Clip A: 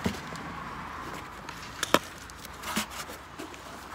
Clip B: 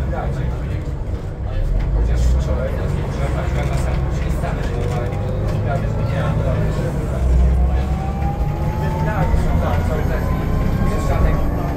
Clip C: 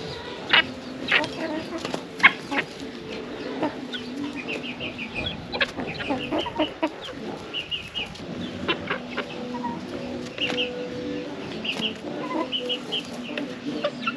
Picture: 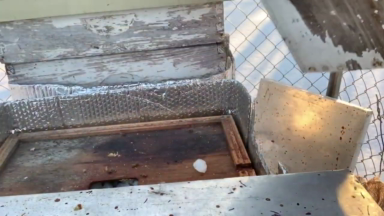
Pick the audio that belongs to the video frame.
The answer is A